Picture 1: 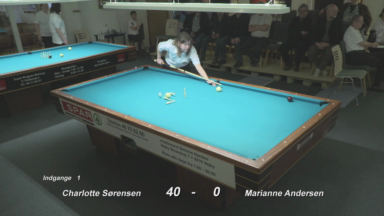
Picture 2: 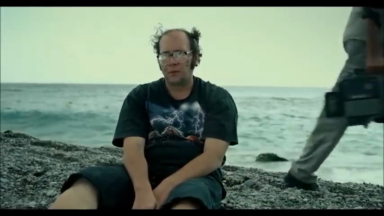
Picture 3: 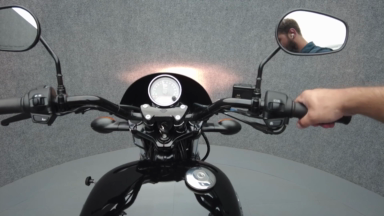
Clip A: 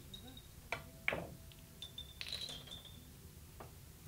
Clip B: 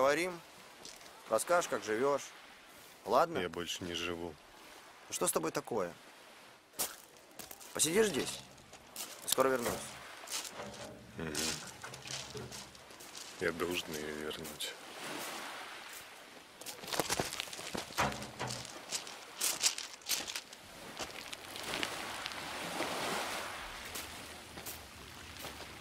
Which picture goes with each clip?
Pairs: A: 1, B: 2